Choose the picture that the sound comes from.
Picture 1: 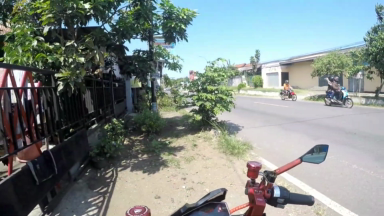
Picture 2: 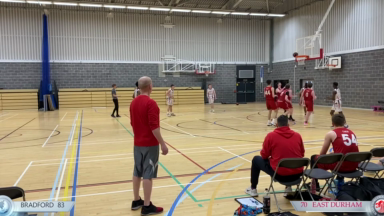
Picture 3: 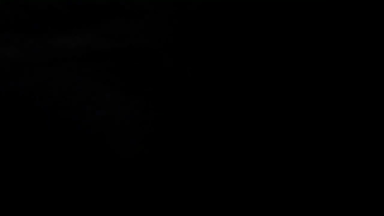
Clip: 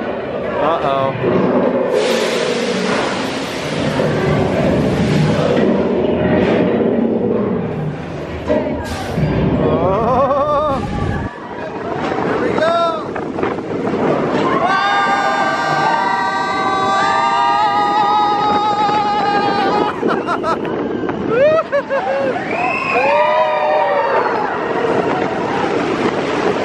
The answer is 3